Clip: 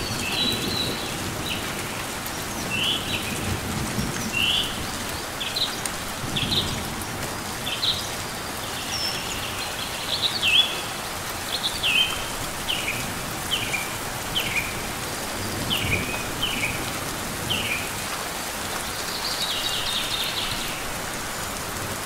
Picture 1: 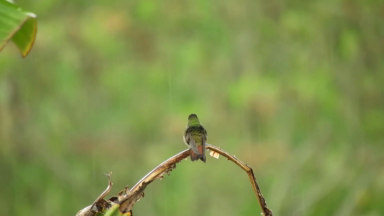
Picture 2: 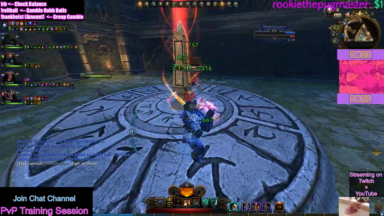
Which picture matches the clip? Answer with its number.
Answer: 1